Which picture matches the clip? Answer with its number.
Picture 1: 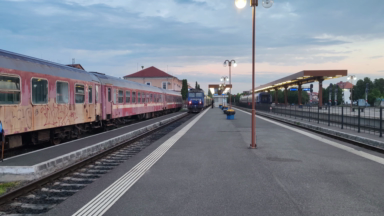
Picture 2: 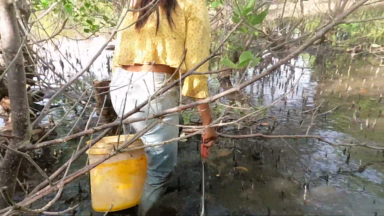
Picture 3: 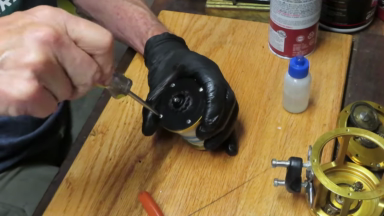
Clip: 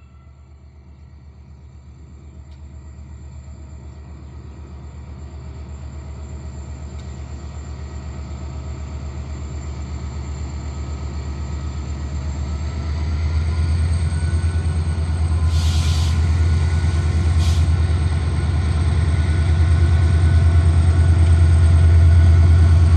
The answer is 1